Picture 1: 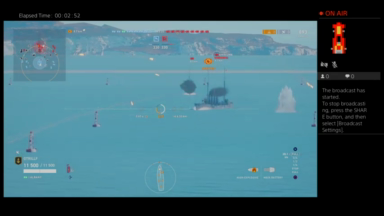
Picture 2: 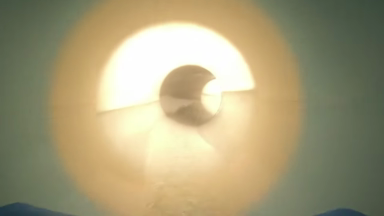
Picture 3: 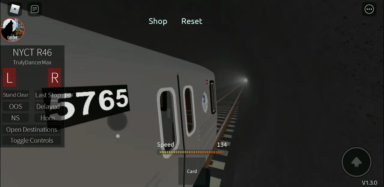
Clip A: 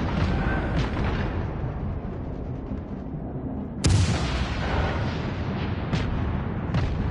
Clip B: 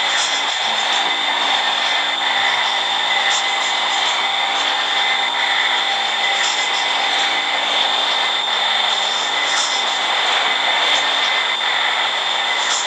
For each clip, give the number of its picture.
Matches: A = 1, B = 3